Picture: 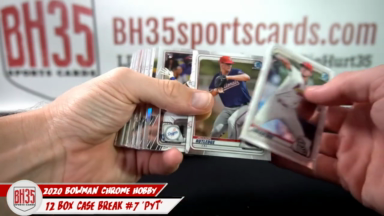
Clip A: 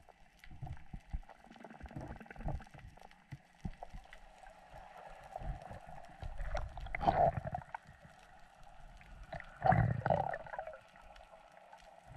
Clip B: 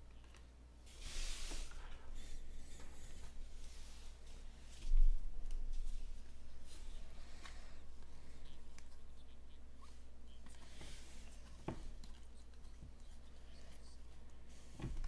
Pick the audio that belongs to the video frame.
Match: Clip B